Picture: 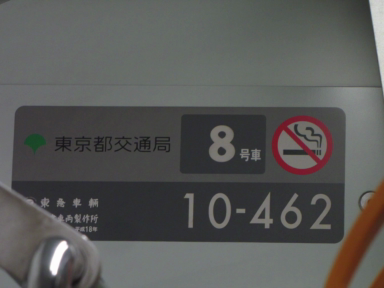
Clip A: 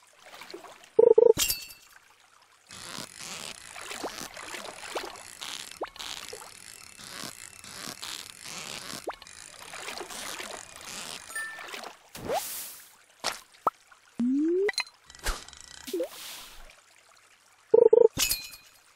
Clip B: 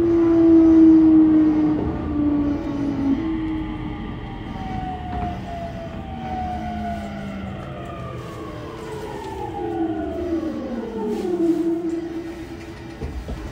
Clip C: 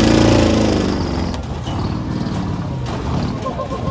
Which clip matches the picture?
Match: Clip B